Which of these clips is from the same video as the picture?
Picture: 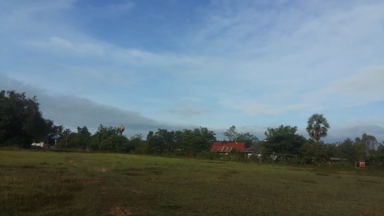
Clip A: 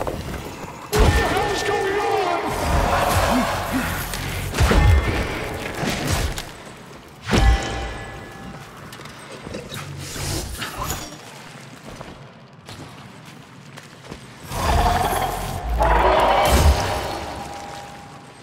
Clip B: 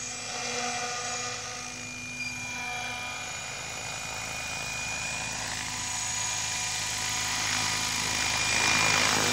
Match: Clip B